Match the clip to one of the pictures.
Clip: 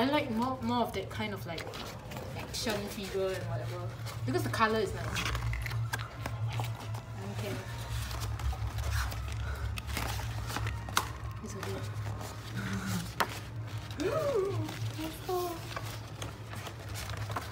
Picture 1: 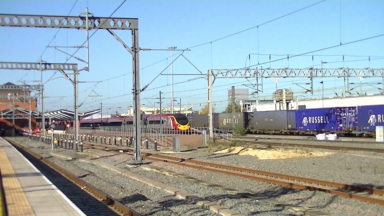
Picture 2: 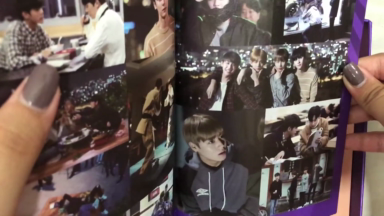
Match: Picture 2